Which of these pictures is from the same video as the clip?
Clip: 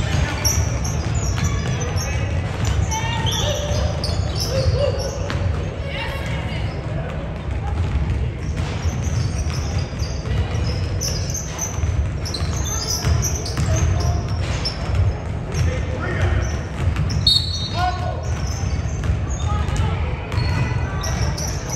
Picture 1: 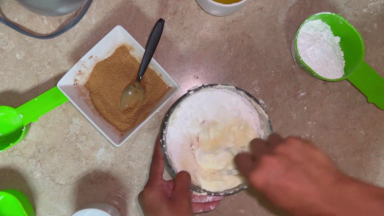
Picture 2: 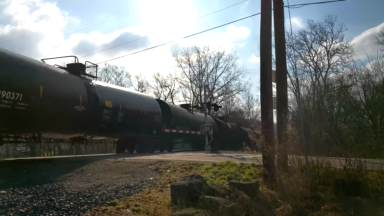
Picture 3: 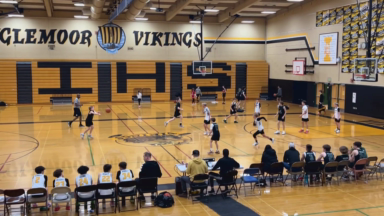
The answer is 3